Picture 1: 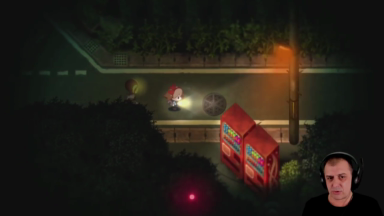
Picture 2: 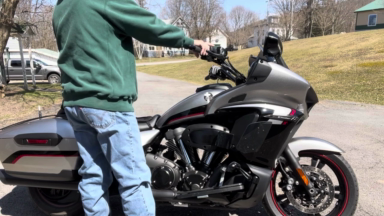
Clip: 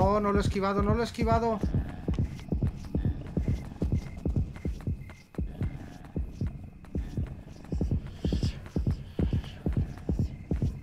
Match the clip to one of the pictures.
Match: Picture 1